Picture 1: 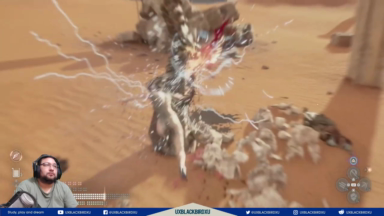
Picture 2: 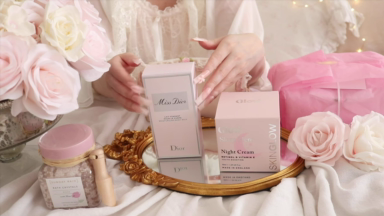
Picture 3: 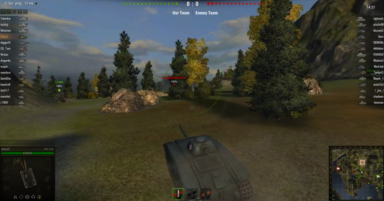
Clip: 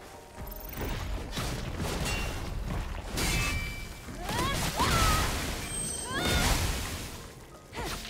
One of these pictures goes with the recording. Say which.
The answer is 1